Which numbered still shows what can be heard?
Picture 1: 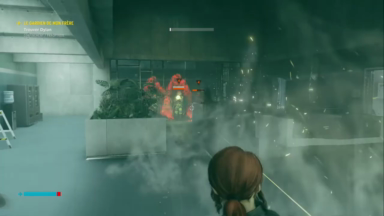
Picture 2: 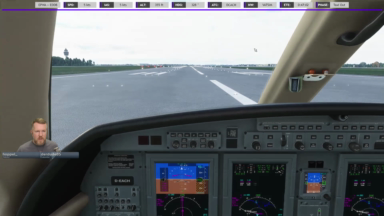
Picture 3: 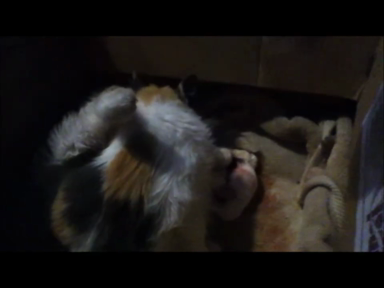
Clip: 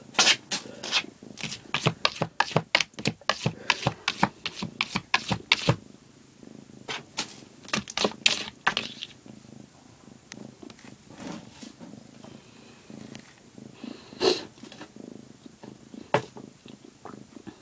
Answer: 3